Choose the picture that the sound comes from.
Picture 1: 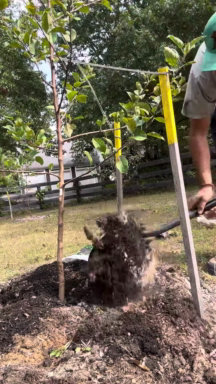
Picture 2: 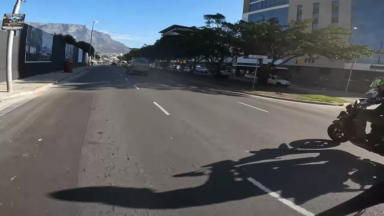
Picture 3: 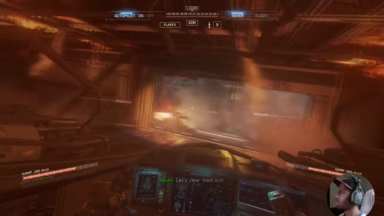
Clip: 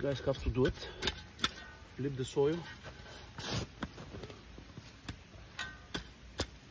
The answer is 1